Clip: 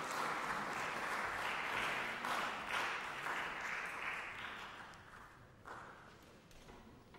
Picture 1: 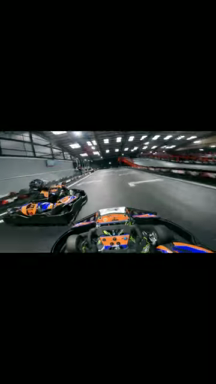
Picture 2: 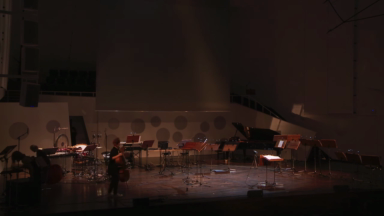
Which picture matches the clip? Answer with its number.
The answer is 2